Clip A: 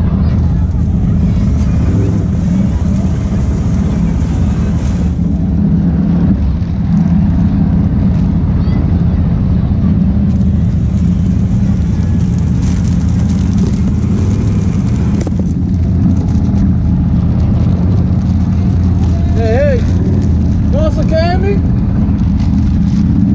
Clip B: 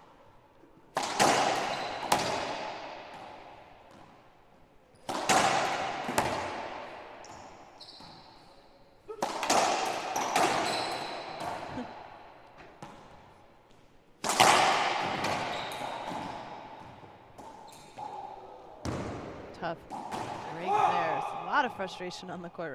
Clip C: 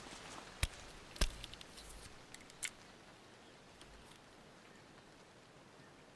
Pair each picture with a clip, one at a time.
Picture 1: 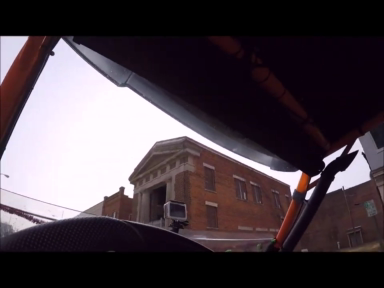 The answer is A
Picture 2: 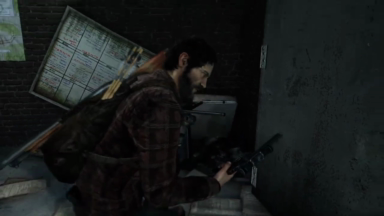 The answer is C